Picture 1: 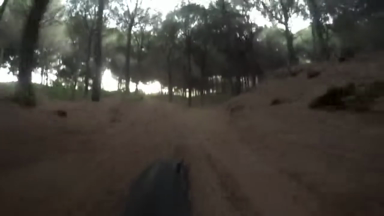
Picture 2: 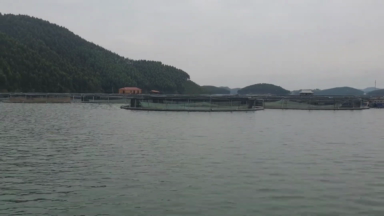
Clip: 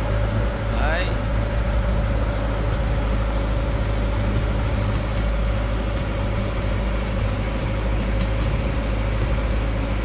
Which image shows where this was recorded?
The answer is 2